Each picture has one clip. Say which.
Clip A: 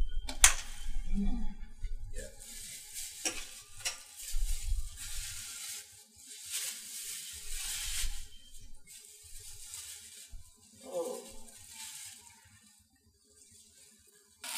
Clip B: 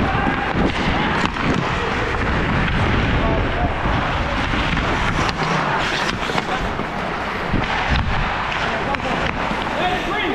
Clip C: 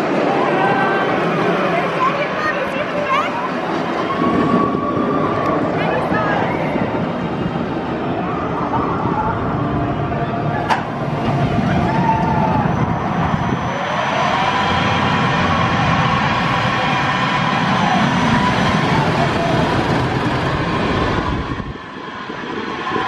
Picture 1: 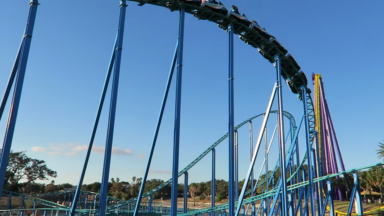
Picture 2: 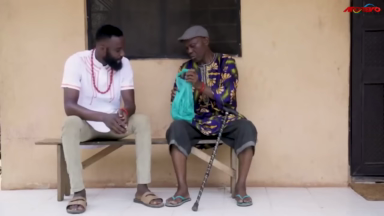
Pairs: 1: C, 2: A